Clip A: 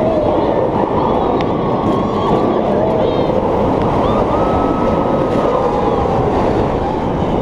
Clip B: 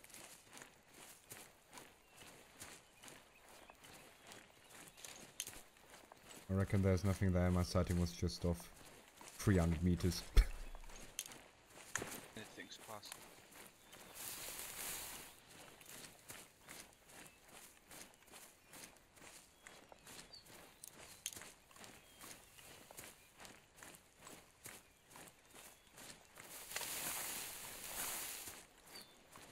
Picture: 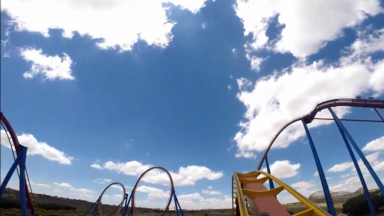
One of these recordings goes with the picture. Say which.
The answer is A